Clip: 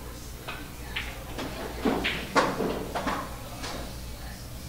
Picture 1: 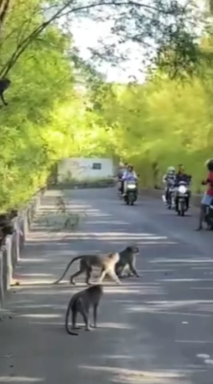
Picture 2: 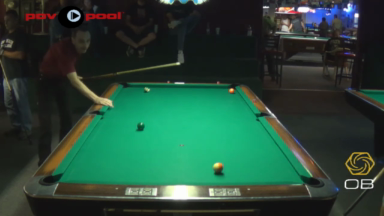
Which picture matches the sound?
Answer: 2